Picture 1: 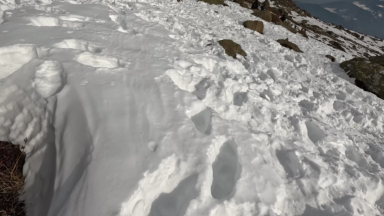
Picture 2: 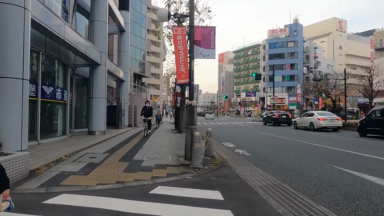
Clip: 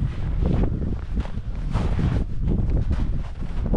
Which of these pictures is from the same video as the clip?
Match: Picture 1